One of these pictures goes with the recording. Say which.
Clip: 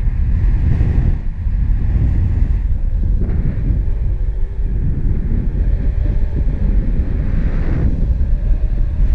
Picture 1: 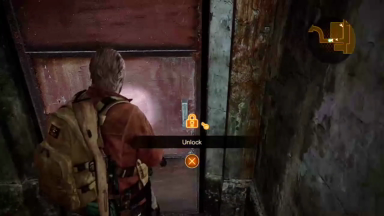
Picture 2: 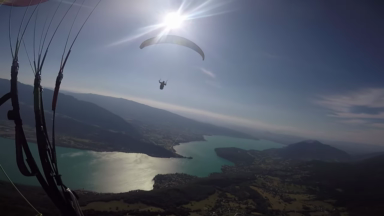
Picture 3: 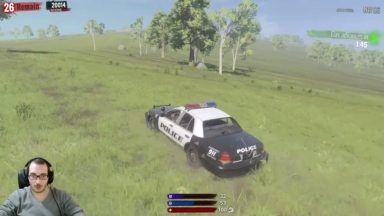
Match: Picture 2